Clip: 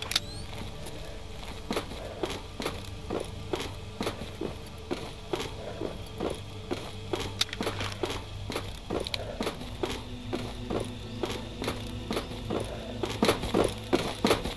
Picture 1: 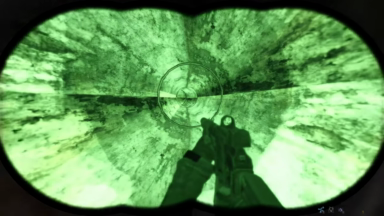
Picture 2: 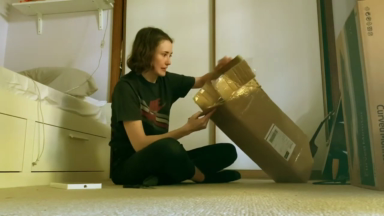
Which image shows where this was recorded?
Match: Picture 1